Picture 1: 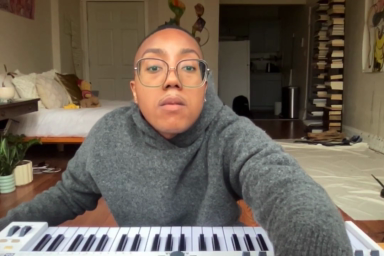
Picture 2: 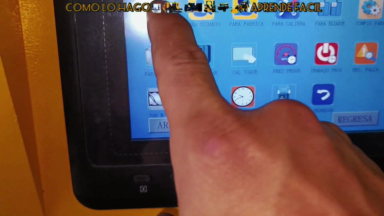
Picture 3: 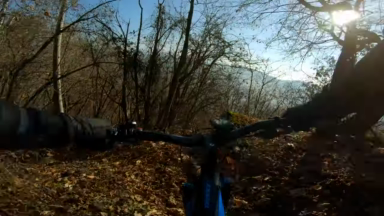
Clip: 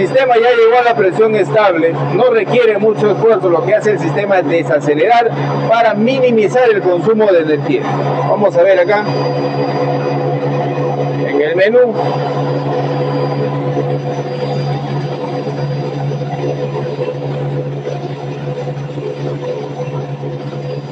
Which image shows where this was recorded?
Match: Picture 2